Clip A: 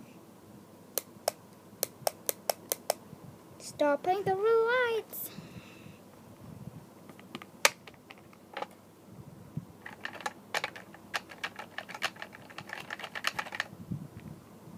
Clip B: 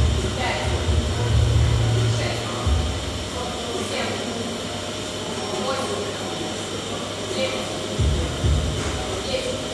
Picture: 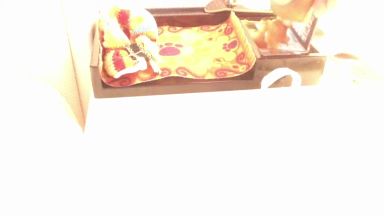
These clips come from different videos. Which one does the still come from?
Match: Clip A